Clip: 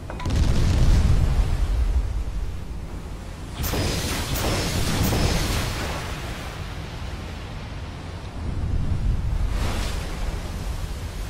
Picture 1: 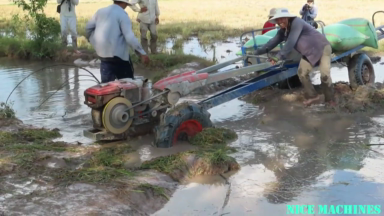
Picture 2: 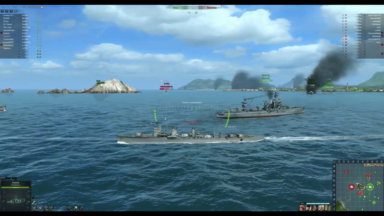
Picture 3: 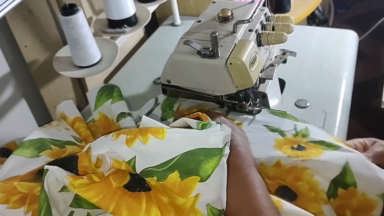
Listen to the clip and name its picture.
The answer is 2